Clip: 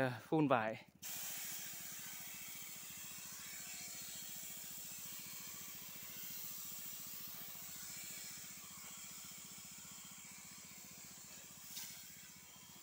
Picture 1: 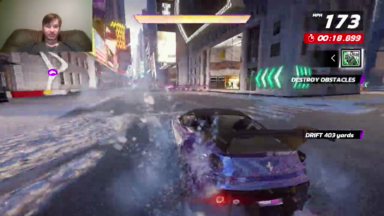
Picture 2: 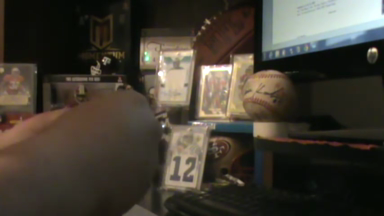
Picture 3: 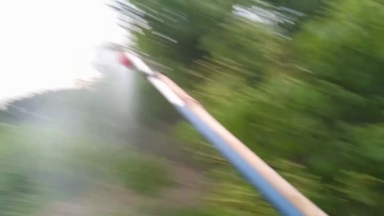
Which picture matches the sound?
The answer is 3